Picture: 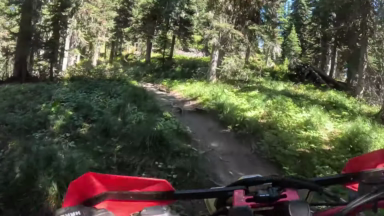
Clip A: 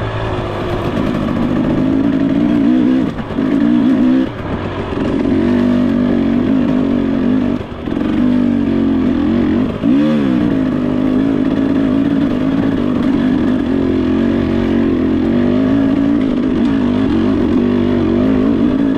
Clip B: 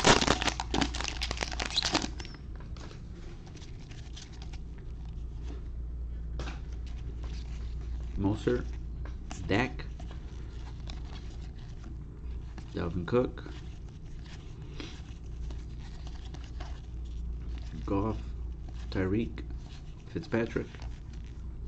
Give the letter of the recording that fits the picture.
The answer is A